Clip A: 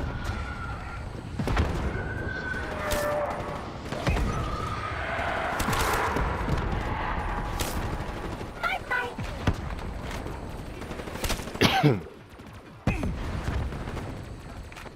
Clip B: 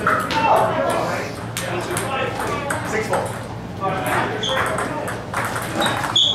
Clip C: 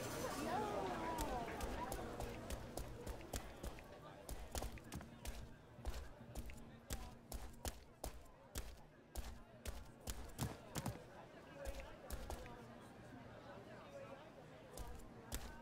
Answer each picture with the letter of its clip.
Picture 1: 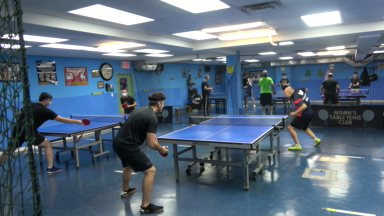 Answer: B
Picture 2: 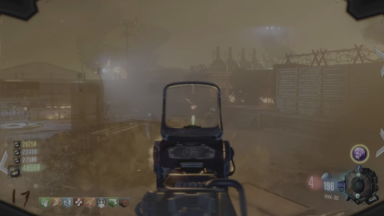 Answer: A